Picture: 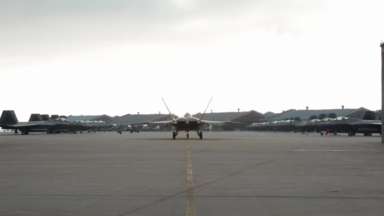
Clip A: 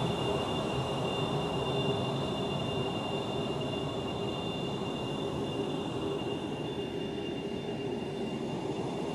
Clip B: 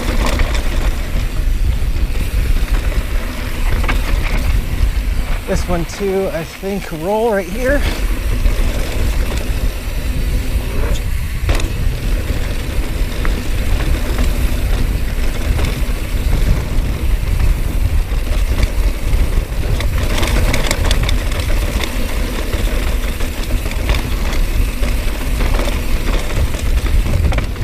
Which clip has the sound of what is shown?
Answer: A